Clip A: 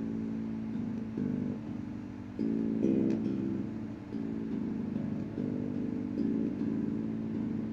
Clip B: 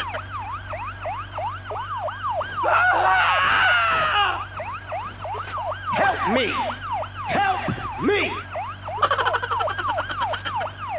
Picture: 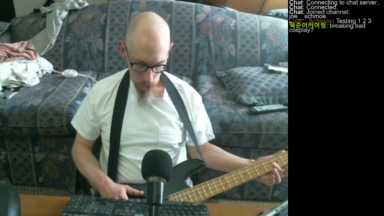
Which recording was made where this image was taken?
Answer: A